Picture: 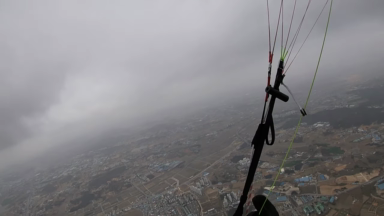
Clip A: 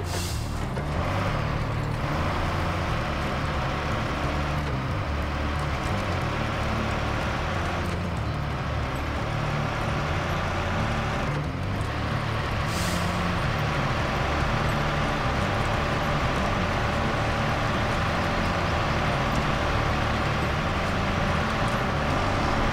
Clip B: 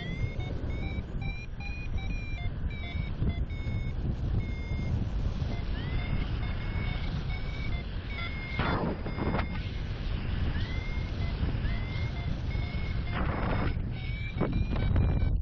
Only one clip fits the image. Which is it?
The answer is B